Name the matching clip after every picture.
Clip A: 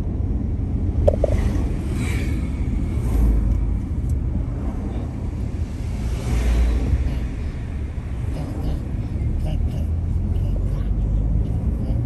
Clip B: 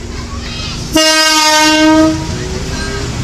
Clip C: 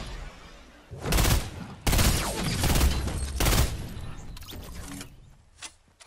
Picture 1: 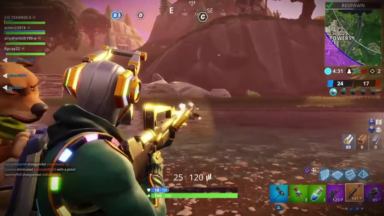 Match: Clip C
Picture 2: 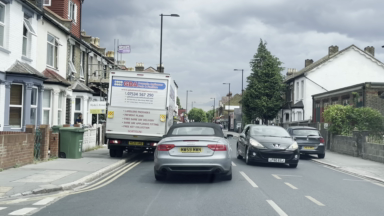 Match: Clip A